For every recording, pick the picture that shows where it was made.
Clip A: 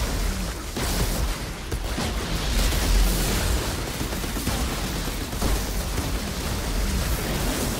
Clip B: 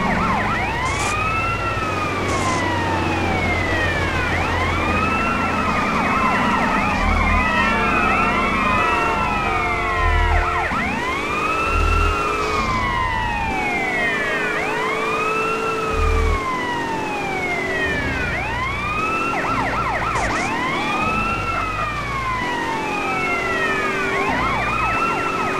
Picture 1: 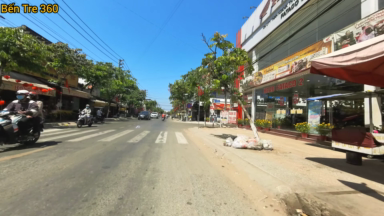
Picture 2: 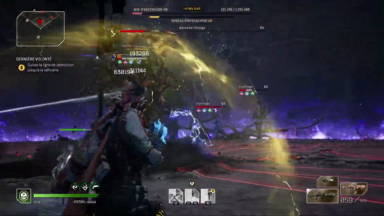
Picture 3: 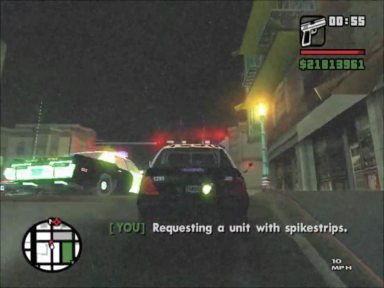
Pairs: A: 2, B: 3